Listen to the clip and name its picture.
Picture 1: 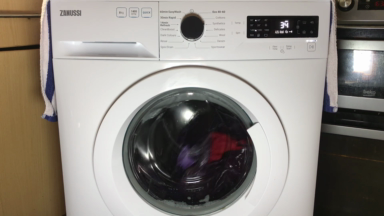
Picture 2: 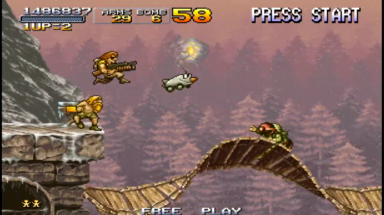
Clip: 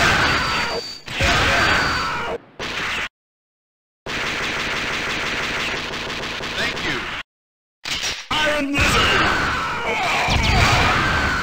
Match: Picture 2